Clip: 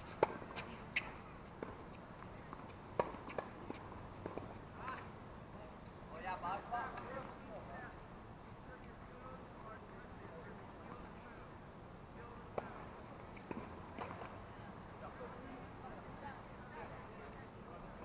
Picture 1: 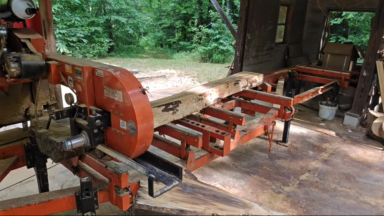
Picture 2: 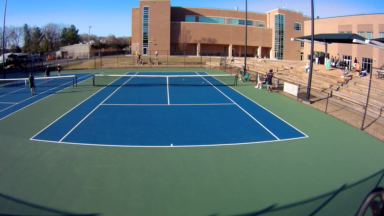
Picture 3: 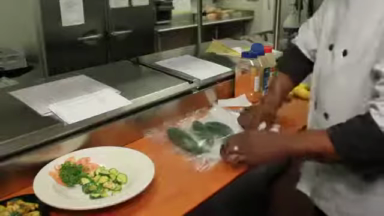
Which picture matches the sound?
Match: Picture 2